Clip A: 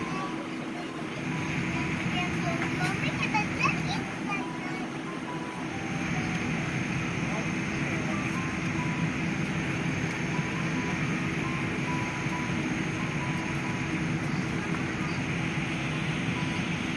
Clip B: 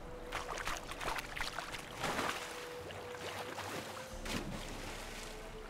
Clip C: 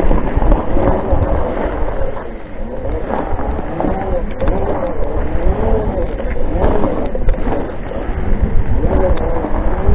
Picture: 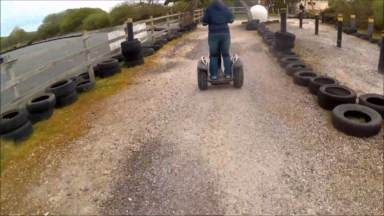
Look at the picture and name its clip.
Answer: C